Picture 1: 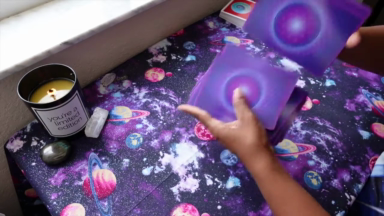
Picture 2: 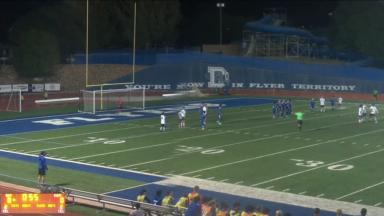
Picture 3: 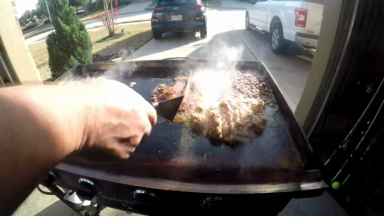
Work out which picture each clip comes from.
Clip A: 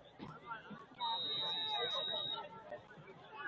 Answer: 2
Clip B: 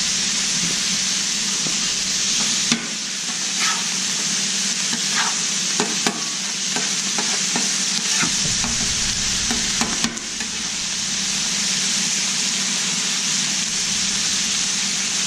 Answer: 3